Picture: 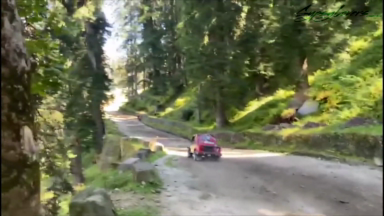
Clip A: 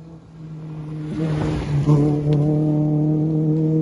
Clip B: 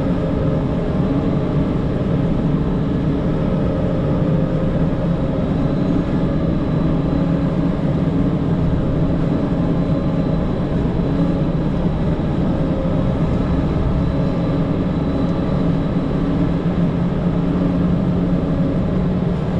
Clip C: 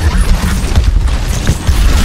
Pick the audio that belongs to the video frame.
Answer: A